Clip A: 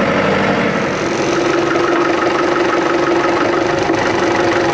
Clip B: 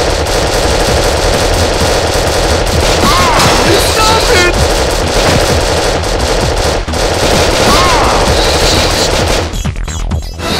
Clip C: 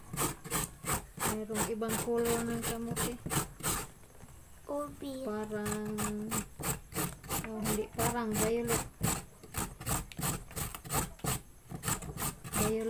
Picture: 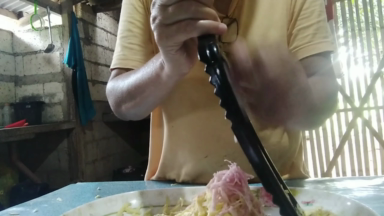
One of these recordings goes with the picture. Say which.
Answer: C